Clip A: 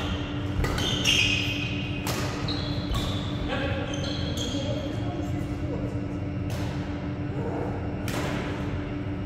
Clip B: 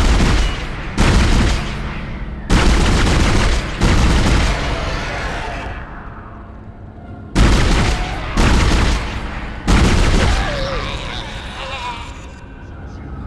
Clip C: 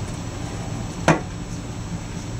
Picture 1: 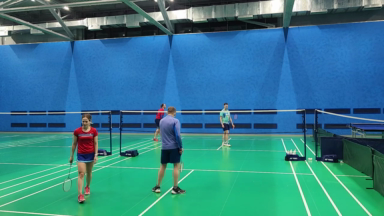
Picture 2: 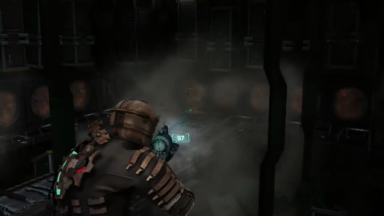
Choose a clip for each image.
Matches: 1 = A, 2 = B